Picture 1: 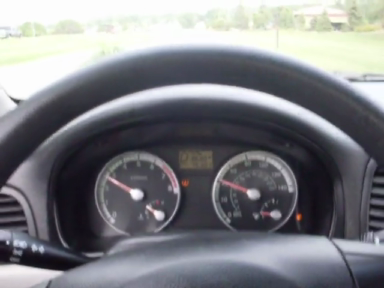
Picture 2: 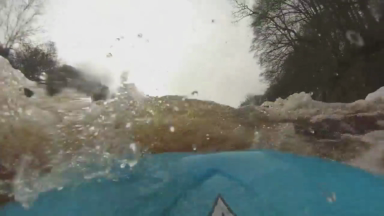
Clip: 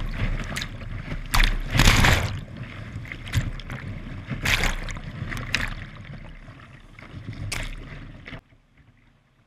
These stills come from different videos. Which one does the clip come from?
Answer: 2